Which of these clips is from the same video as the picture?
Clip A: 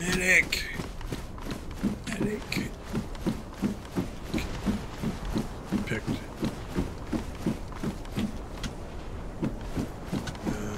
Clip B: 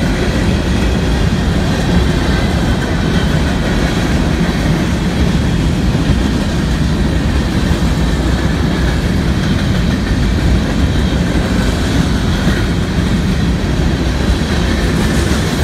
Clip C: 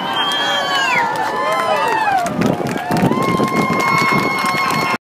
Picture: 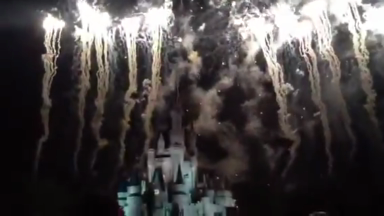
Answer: C